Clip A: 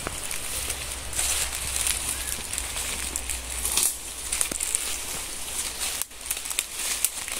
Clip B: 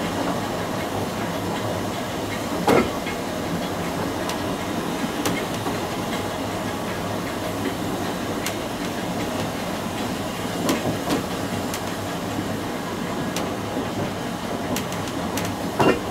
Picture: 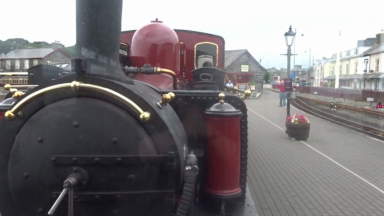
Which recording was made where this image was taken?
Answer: B